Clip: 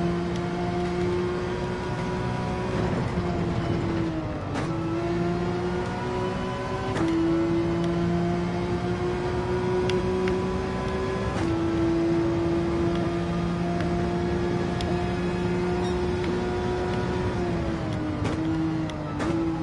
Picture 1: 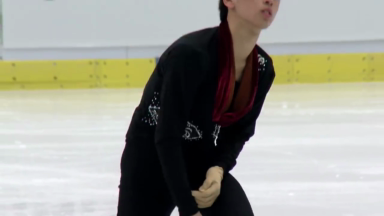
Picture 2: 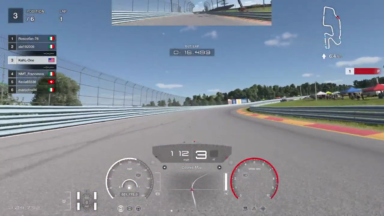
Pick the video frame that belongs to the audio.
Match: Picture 2